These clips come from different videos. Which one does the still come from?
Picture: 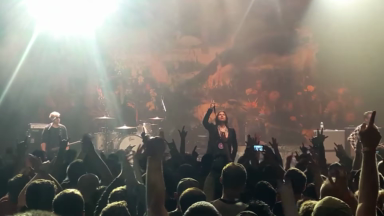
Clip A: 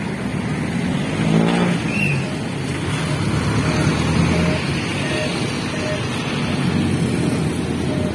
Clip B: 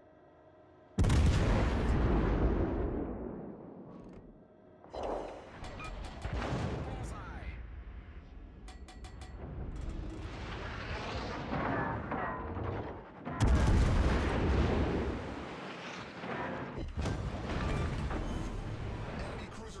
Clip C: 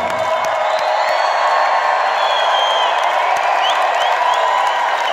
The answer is C